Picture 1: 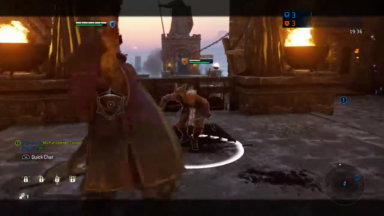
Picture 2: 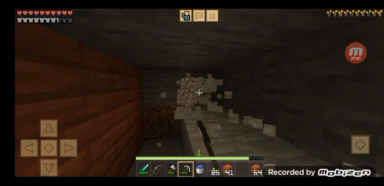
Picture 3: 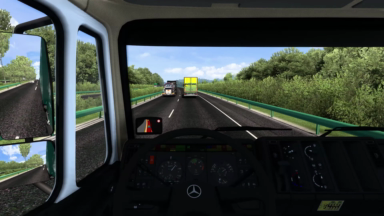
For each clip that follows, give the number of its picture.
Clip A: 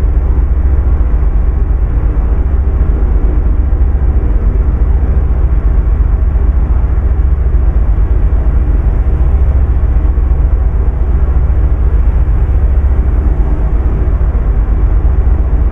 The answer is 3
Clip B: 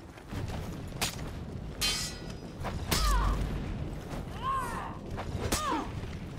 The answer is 1